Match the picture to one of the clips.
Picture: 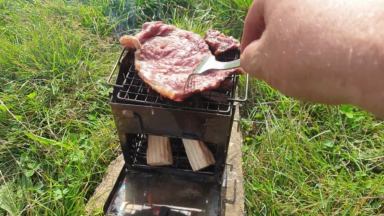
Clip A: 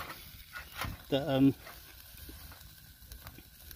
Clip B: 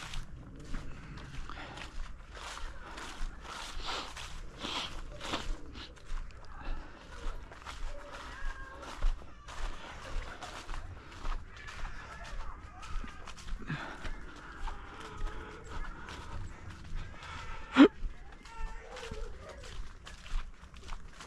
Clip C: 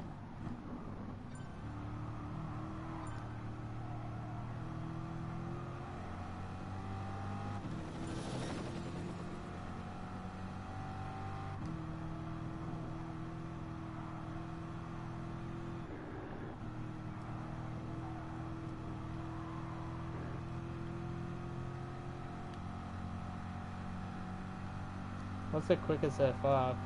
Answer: A